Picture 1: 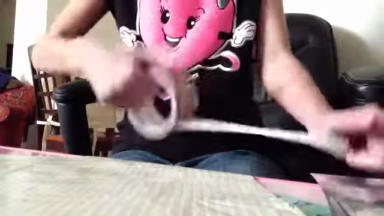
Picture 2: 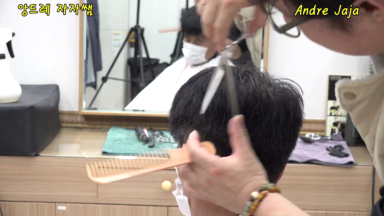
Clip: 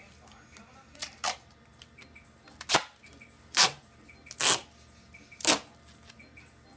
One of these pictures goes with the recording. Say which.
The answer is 1